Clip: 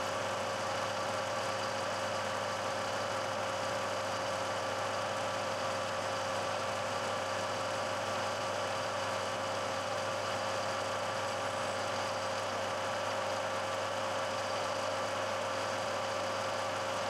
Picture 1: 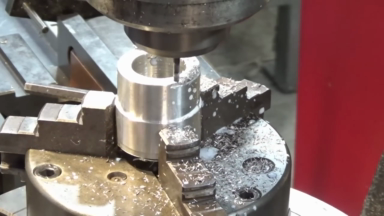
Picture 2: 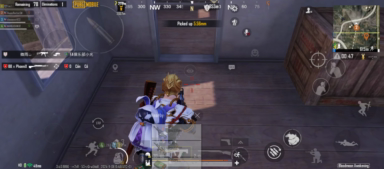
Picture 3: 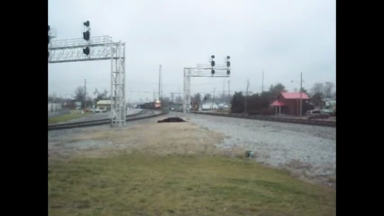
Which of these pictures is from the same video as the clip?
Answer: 1